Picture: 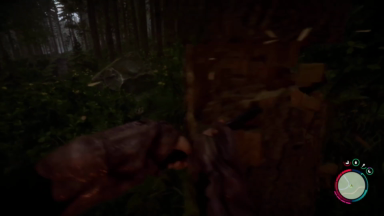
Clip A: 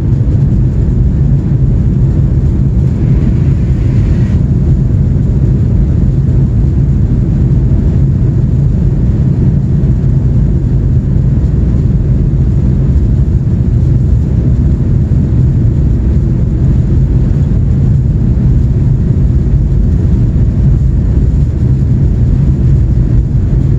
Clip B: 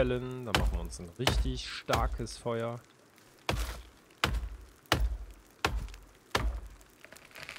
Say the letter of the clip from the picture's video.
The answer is B